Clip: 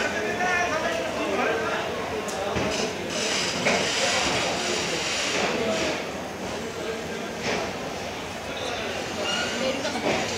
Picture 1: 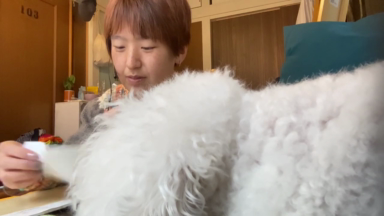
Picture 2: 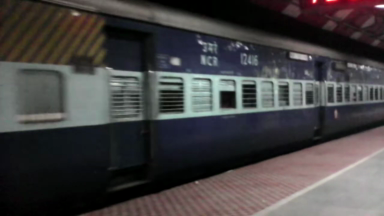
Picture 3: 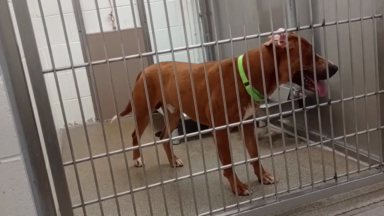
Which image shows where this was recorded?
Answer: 2